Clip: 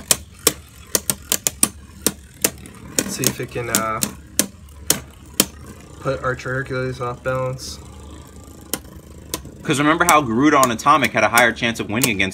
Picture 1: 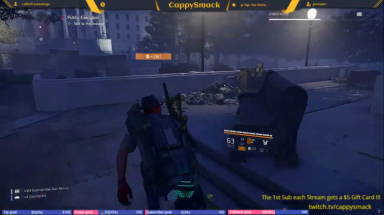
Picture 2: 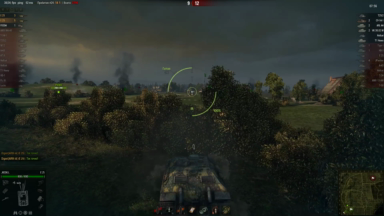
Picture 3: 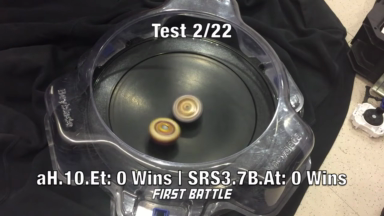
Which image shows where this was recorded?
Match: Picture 3